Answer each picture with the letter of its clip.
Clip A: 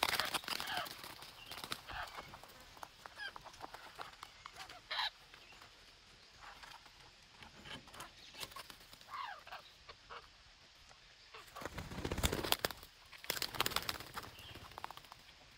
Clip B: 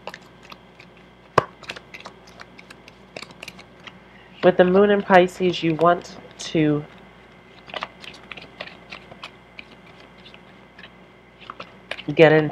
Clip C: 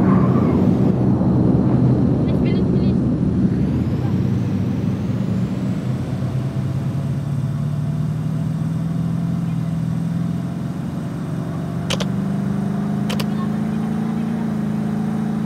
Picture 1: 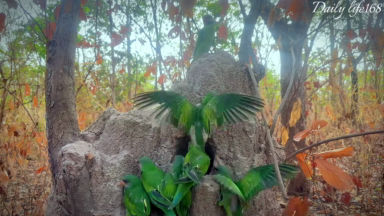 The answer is A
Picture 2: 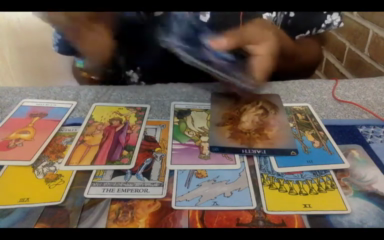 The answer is B